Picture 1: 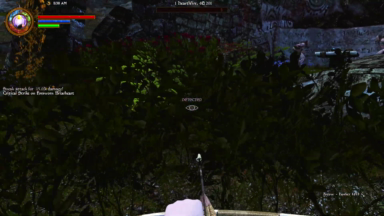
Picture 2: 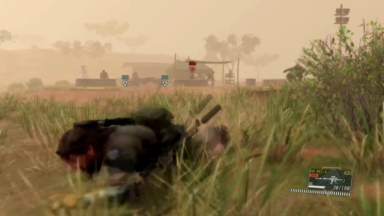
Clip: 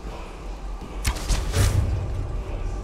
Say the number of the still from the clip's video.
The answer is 1